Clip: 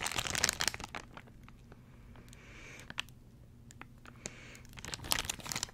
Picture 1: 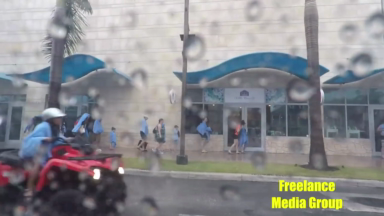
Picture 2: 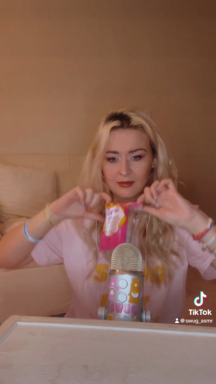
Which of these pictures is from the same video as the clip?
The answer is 2